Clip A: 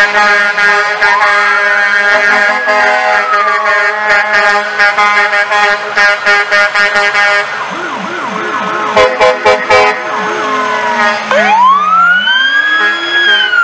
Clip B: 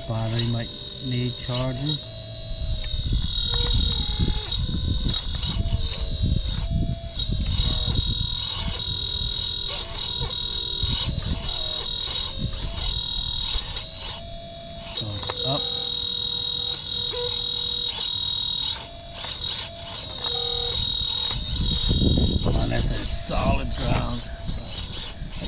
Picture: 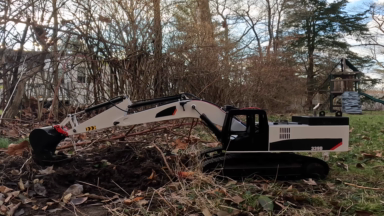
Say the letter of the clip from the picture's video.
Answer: B